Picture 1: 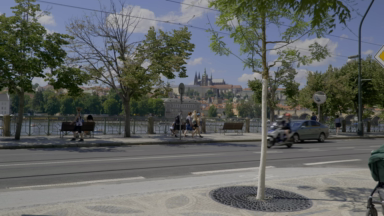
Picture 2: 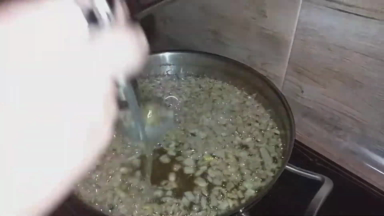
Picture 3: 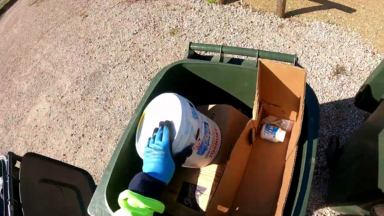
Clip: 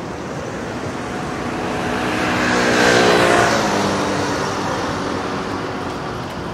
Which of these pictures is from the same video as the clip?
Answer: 1